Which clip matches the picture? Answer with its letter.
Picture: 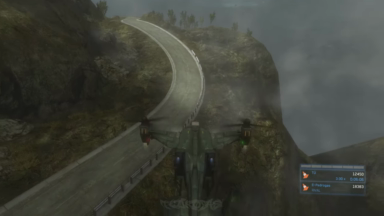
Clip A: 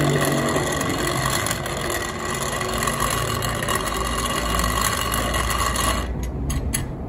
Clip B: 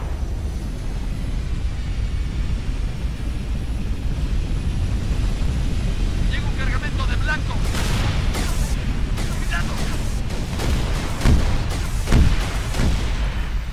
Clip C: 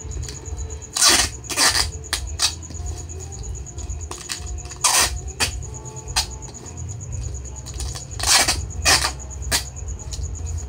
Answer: B